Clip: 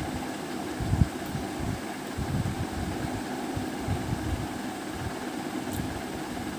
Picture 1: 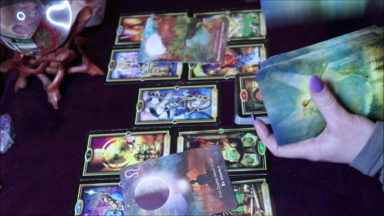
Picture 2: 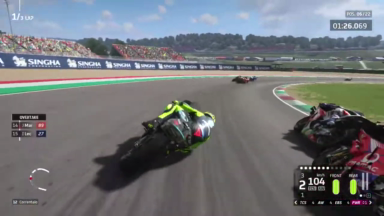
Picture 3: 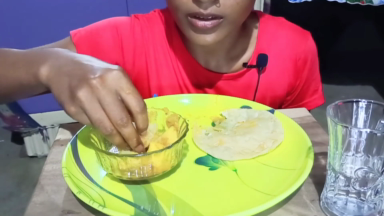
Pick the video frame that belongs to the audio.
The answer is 3